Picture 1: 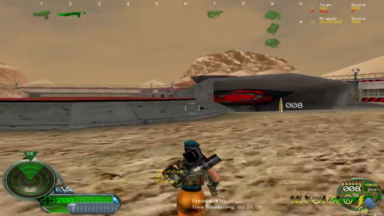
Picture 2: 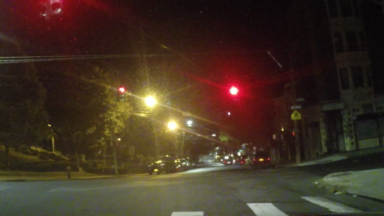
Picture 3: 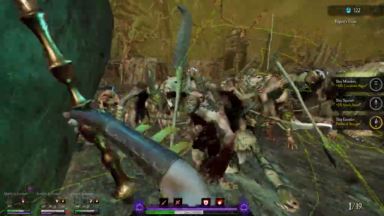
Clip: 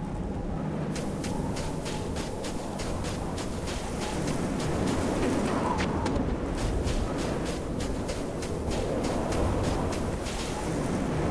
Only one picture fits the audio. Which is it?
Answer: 1